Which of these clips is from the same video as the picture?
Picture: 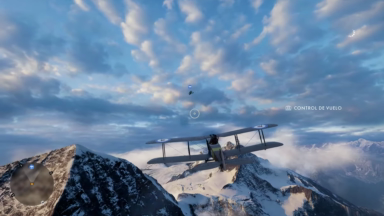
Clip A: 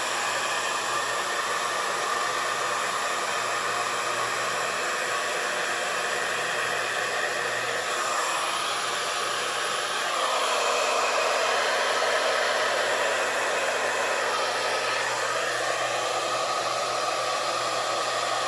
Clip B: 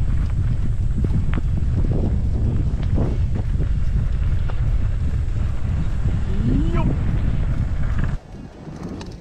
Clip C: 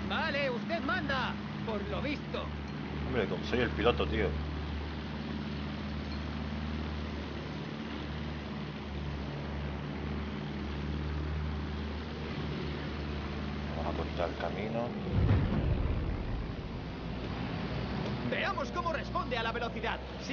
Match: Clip C